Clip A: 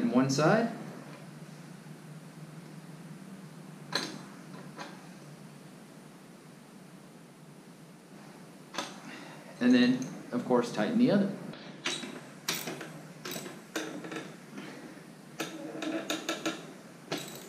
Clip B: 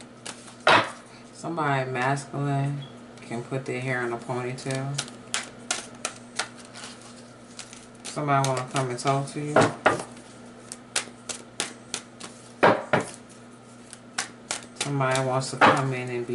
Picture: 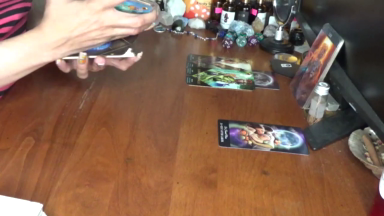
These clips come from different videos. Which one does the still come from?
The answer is B